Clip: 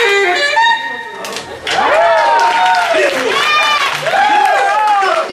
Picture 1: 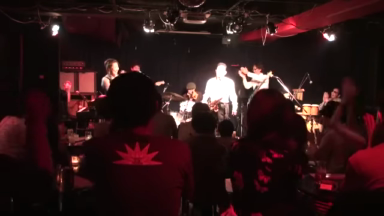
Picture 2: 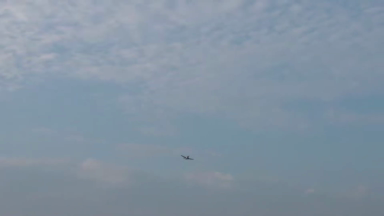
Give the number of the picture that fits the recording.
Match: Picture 1